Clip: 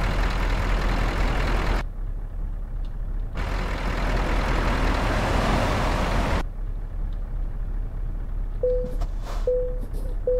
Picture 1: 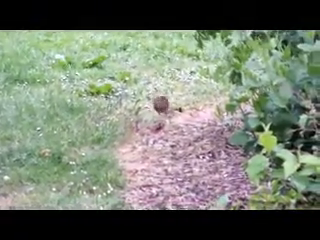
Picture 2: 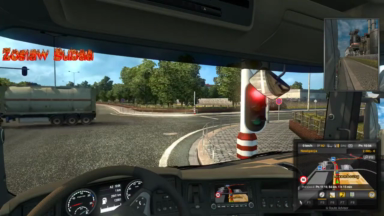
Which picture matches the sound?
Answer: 2